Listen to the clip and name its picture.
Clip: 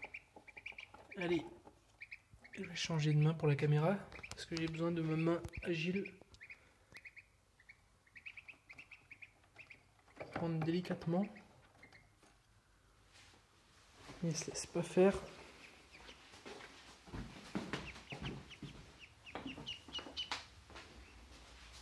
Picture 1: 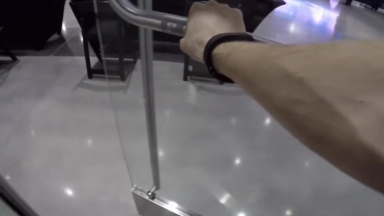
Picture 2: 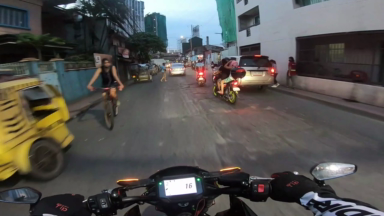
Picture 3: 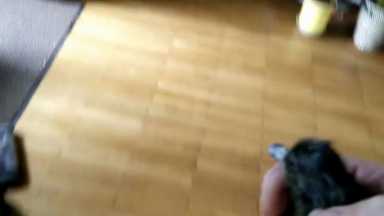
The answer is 3